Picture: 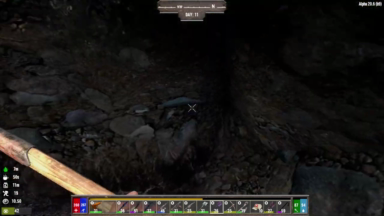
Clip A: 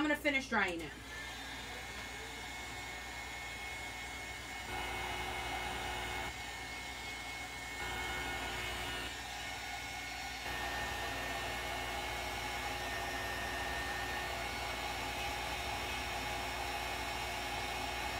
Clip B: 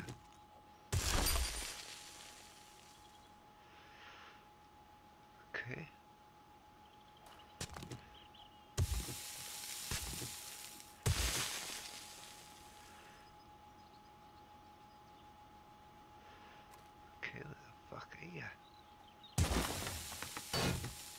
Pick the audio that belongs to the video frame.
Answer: B